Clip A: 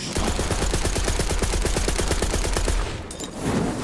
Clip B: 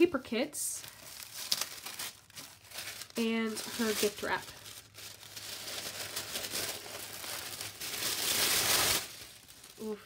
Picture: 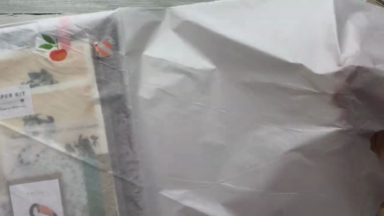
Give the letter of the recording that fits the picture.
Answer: B